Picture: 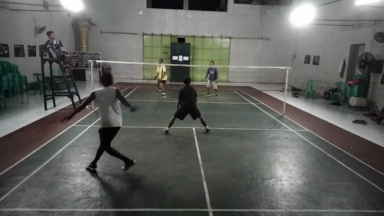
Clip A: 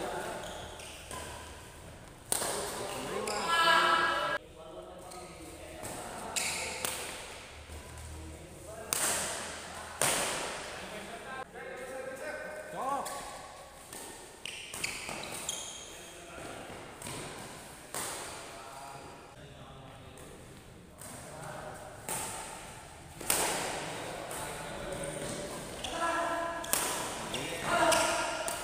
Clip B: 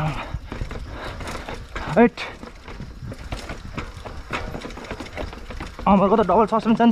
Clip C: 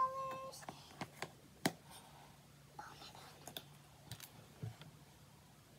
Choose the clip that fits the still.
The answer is A